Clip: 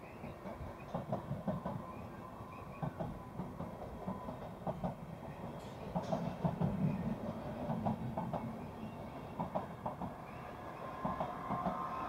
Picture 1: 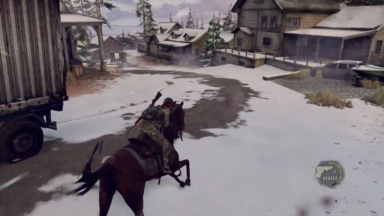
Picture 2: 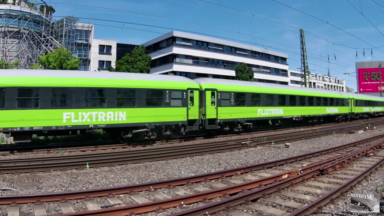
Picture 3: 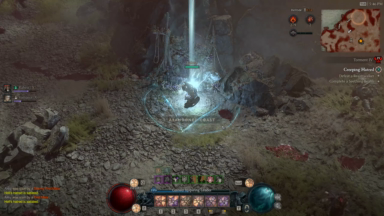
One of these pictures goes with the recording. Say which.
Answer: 2